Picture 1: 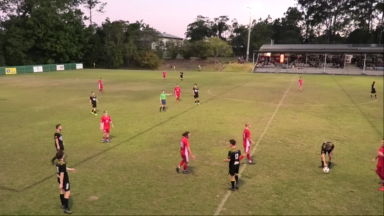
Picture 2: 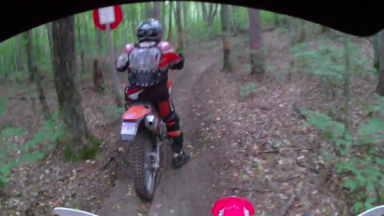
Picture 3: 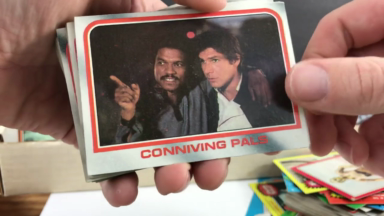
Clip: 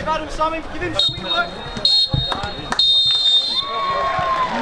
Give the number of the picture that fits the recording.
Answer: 1